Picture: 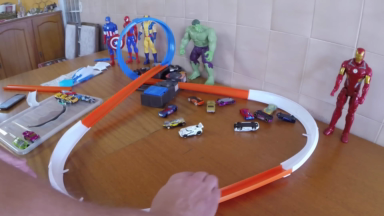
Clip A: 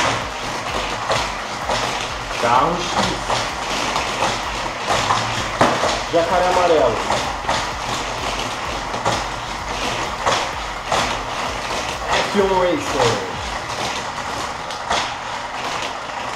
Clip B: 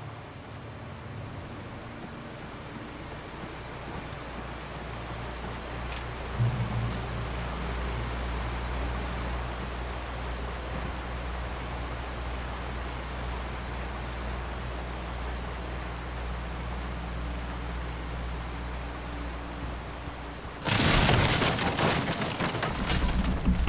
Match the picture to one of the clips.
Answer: A